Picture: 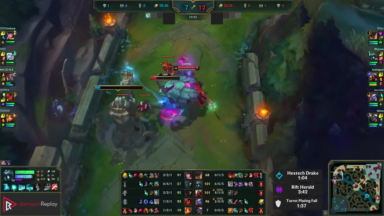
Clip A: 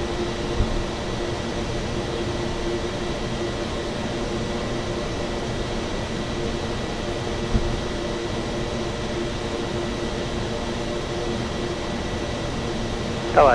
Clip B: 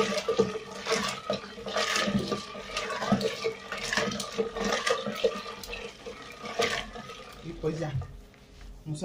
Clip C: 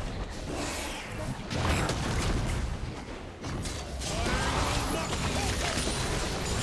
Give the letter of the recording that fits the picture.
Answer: C